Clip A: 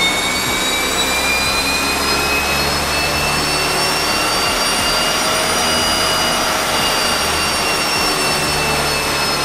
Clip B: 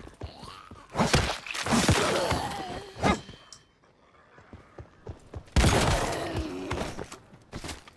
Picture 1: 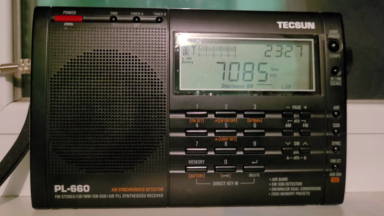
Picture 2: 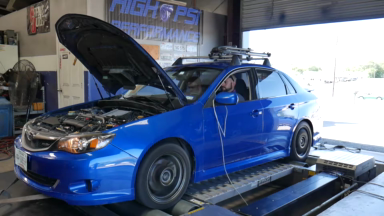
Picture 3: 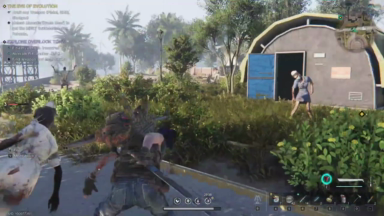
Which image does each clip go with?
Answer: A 2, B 3